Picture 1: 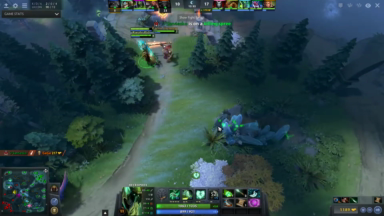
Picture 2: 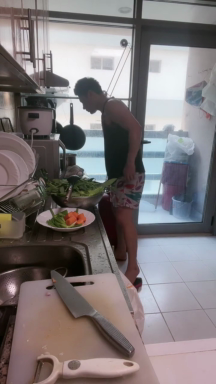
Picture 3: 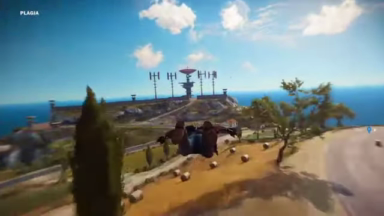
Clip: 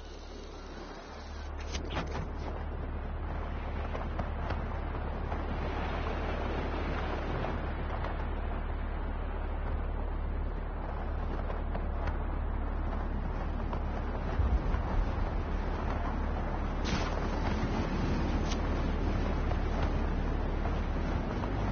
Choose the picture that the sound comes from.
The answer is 3